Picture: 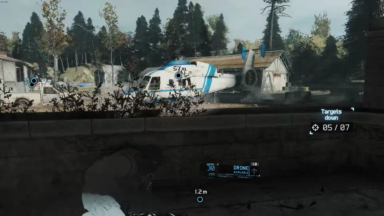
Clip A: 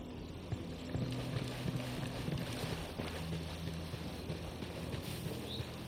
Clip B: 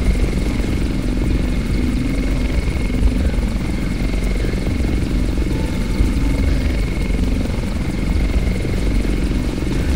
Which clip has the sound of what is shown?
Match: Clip B